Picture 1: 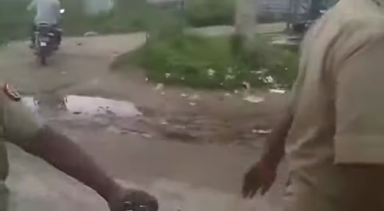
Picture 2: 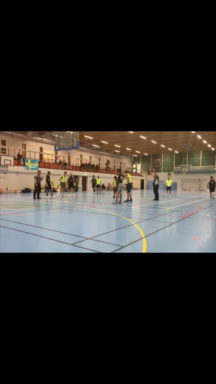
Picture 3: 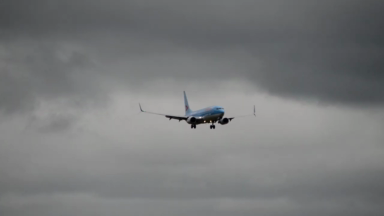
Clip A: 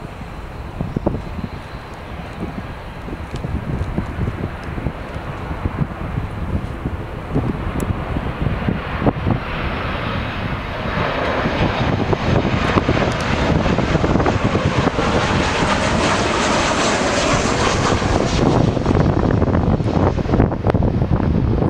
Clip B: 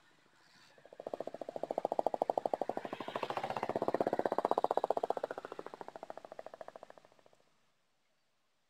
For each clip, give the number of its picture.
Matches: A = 3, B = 1